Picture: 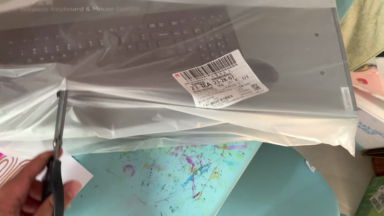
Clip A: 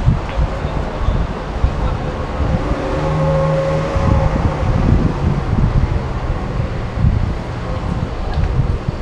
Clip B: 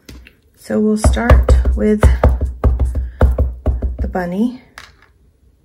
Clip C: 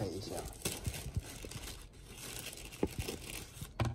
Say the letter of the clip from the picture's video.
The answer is C